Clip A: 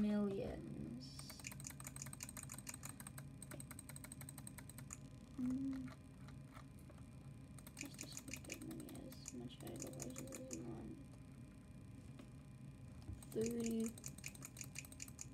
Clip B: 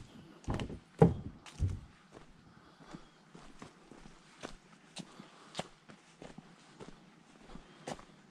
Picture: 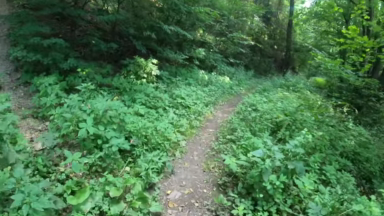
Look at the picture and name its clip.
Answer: B